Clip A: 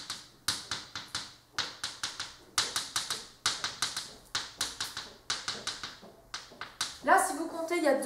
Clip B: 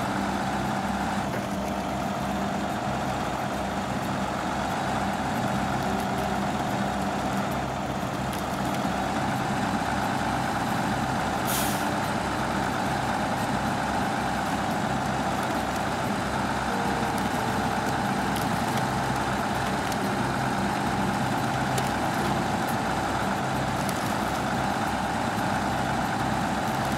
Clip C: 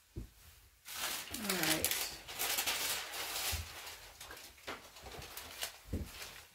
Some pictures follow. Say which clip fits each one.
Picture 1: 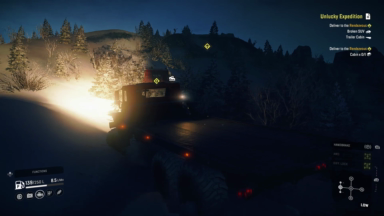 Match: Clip B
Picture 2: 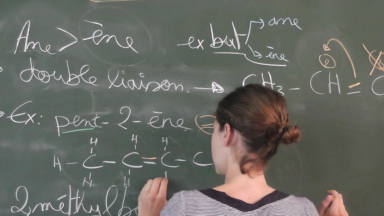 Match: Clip A